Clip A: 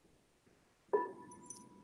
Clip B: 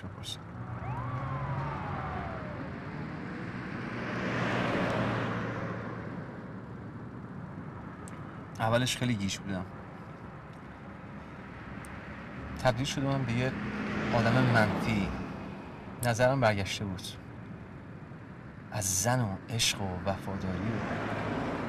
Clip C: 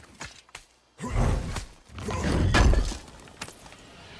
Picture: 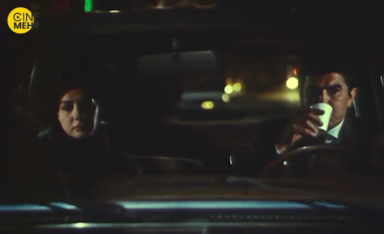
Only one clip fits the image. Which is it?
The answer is B